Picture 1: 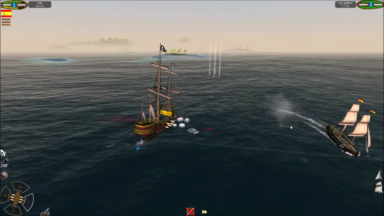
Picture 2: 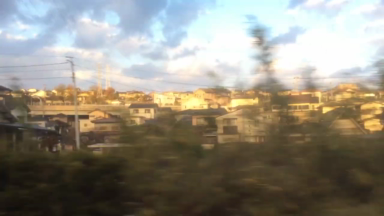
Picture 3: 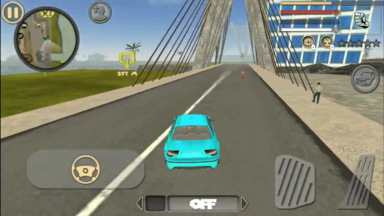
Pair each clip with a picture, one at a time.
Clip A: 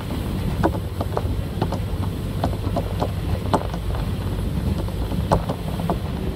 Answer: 2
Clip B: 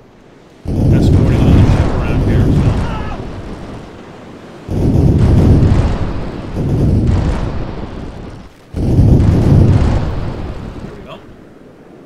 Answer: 1